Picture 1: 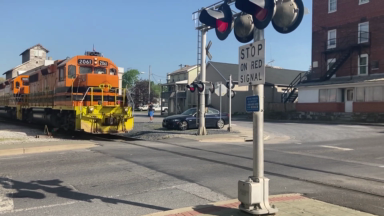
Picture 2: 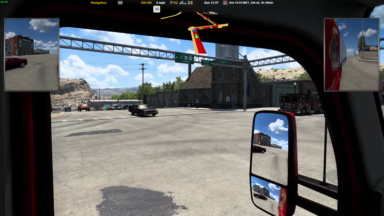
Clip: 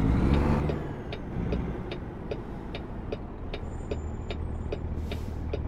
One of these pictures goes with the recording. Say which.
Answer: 2